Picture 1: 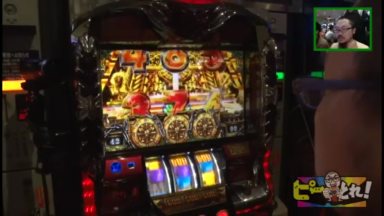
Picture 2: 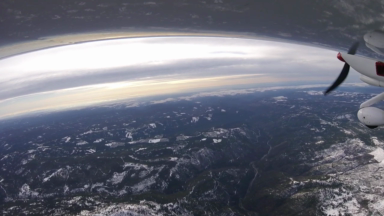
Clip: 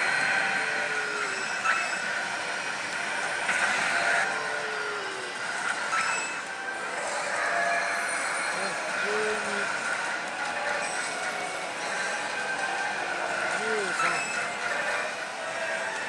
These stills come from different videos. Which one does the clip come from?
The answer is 1